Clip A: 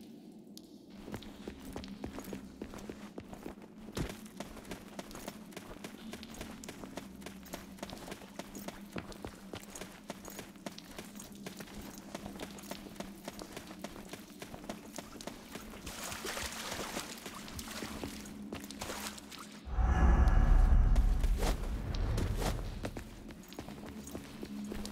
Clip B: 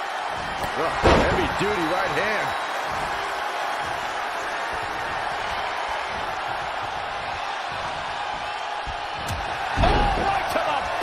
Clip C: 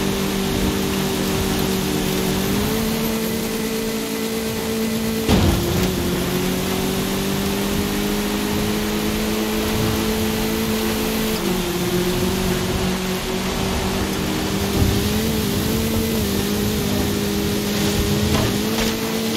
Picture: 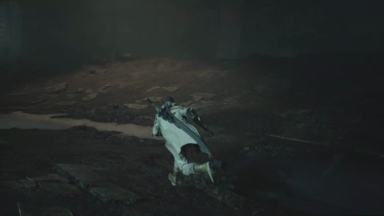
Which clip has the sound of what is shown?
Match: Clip A